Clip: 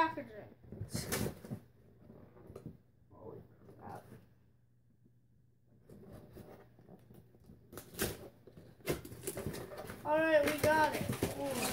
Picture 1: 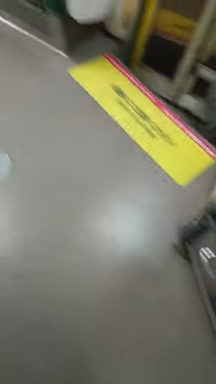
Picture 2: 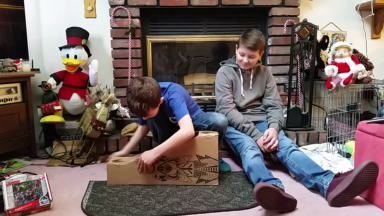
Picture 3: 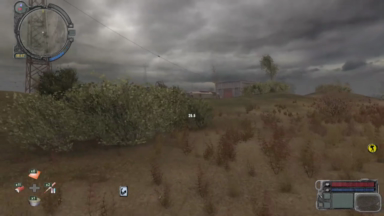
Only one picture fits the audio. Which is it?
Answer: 2